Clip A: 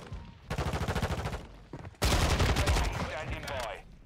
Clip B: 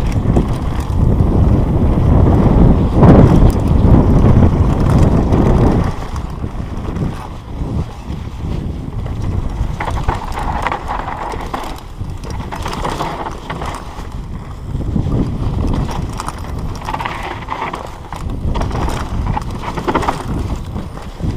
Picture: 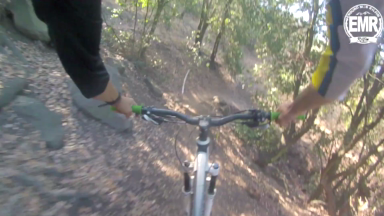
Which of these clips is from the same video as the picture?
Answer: B